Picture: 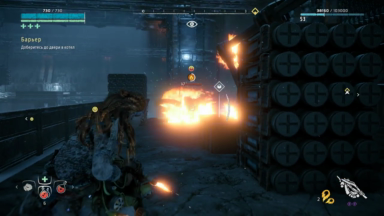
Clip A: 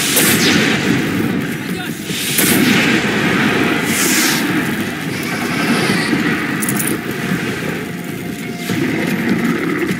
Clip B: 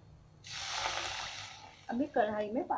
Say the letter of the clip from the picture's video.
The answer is A